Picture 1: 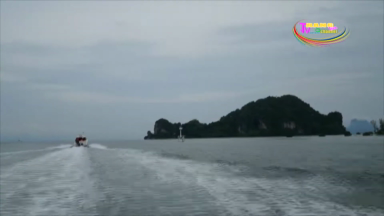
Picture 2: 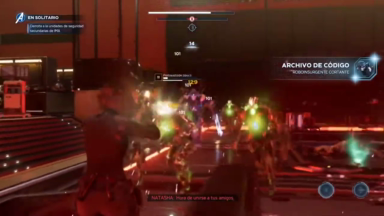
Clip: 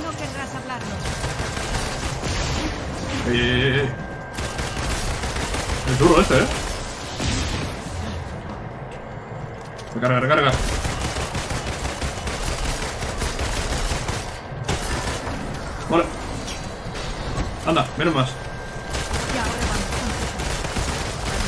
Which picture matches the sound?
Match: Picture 2